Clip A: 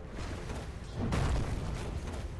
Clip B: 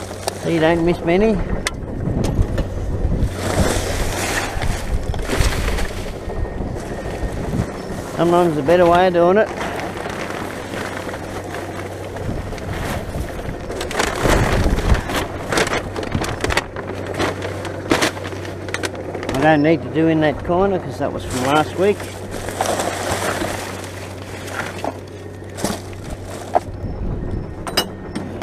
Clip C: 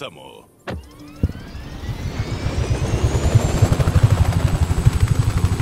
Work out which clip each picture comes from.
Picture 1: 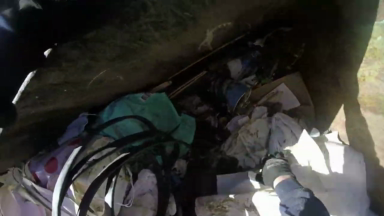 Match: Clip B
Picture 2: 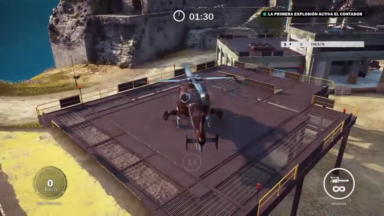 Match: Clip C